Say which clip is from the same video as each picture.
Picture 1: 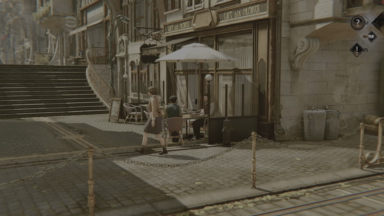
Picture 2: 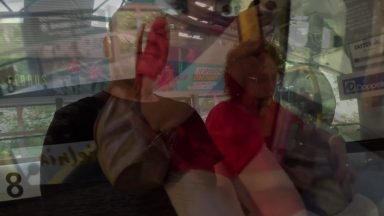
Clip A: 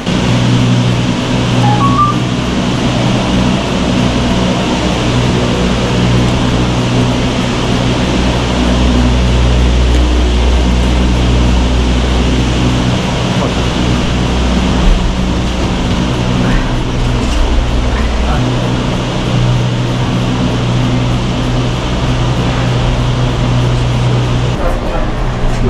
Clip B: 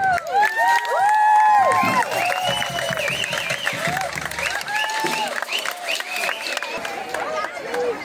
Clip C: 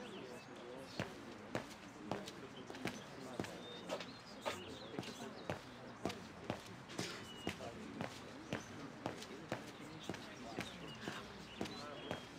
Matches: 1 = C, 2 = A